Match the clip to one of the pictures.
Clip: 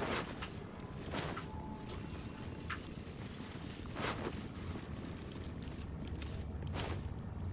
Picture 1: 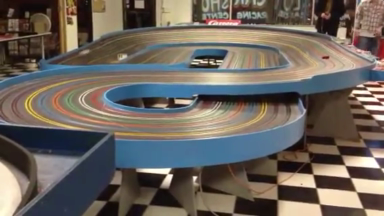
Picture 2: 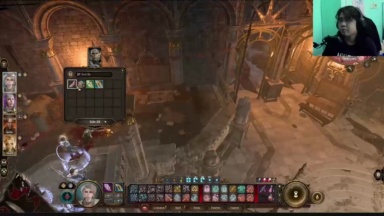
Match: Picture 2